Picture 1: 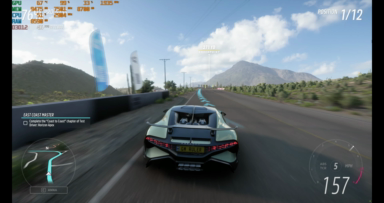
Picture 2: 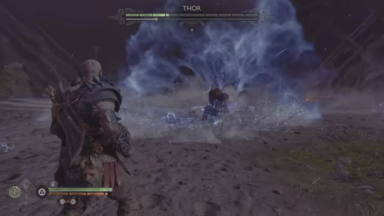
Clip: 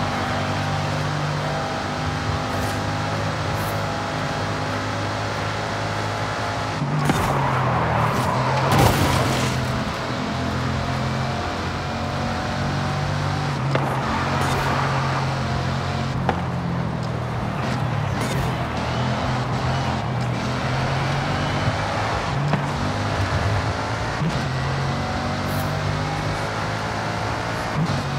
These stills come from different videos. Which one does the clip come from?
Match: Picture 1